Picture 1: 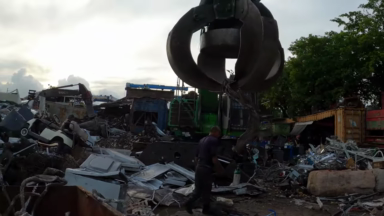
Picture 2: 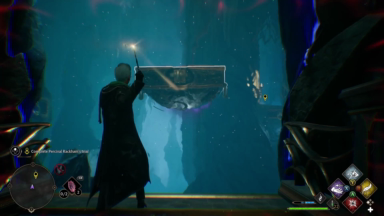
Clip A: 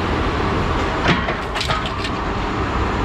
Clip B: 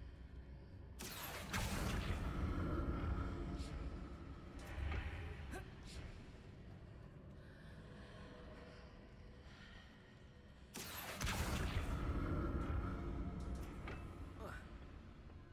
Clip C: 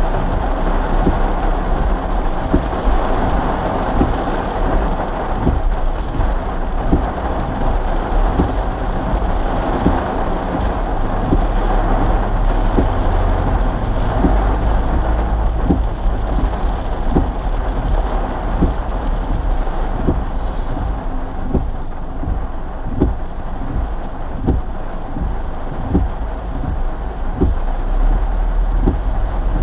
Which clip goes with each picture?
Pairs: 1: A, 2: B